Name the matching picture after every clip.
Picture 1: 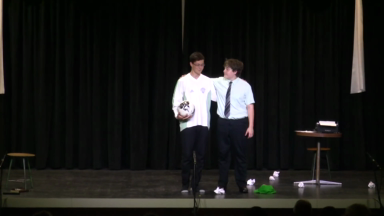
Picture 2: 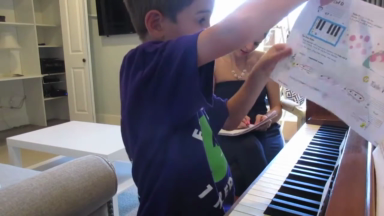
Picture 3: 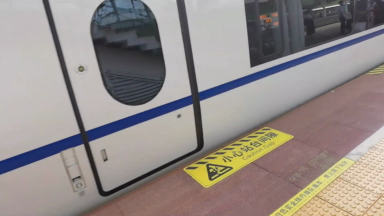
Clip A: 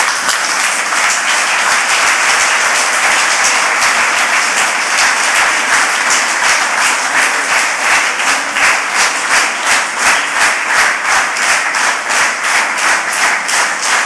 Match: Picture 1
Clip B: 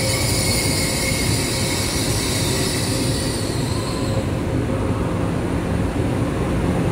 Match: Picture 3